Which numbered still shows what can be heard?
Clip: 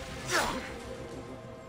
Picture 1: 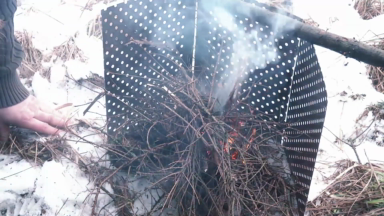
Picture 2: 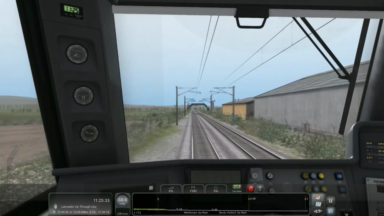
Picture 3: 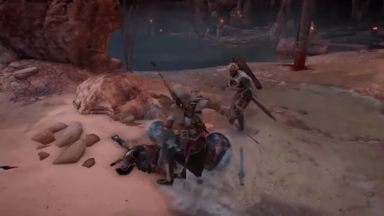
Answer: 3